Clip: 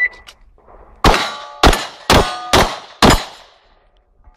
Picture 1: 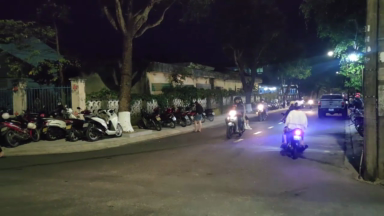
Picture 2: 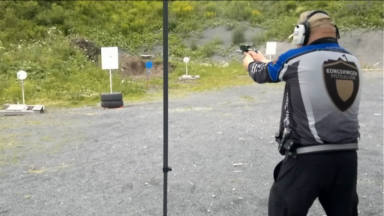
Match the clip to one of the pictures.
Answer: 2